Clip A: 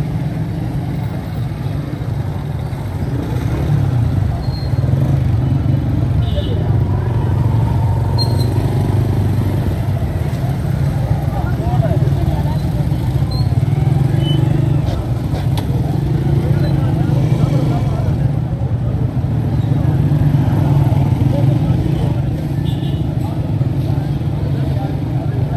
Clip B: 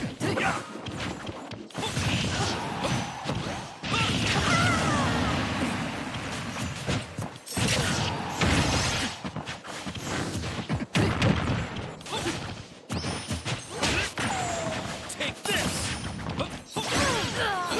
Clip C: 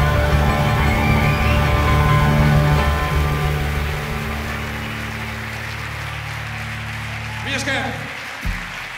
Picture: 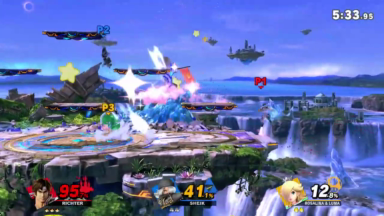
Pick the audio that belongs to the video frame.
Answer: B